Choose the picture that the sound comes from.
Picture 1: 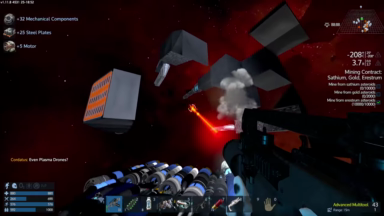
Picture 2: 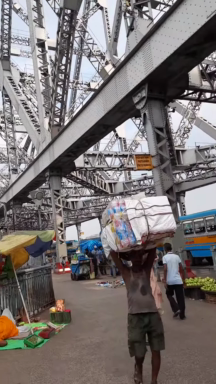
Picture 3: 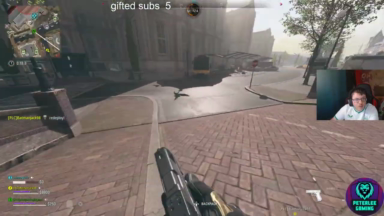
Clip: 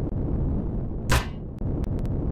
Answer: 1